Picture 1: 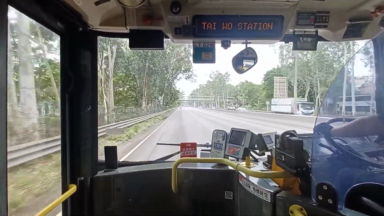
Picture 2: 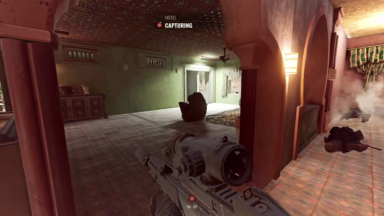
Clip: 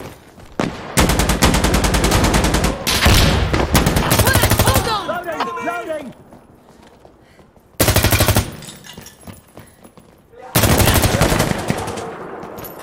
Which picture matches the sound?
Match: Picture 2